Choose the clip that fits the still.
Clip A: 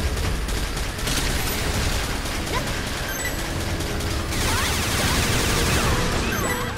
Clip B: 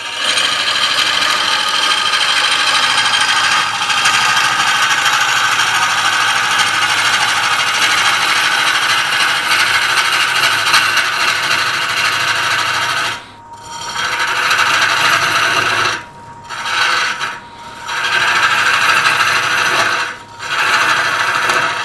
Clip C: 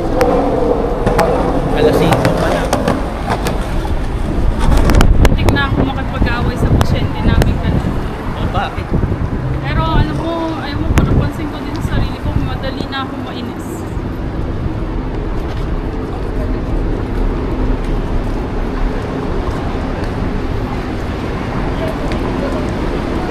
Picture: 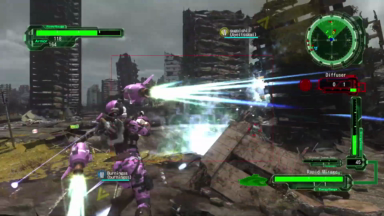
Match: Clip A